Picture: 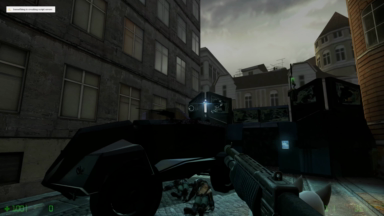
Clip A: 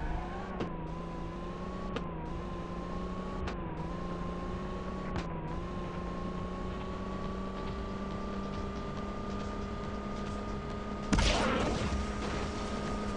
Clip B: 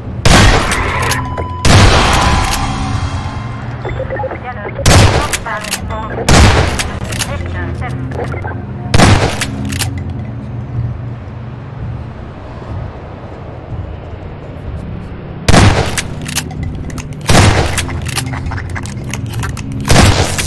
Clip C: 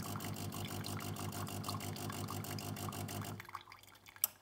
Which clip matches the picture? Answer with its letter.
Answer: B